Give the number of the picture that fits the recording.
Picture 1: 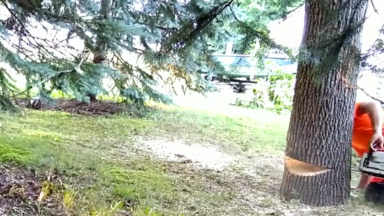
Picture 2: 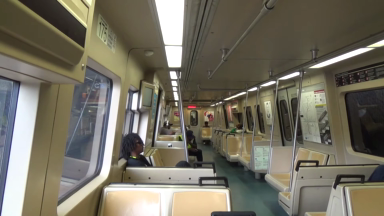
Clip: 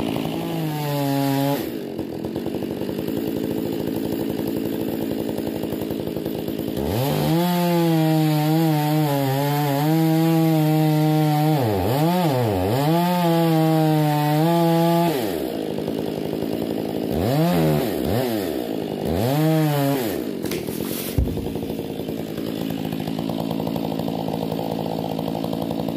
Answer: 1